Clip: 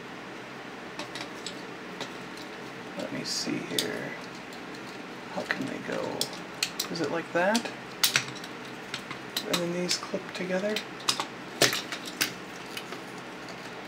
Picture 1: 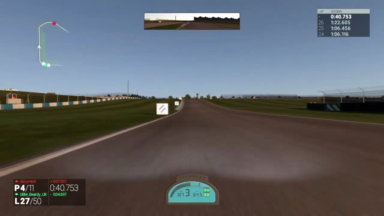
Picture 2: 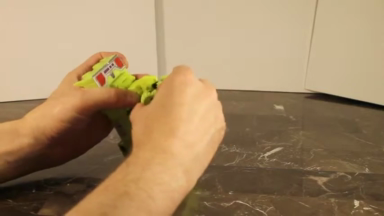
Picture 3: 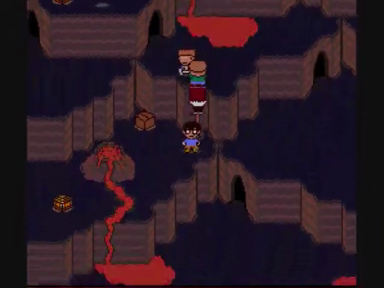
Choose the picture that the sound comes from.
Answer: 2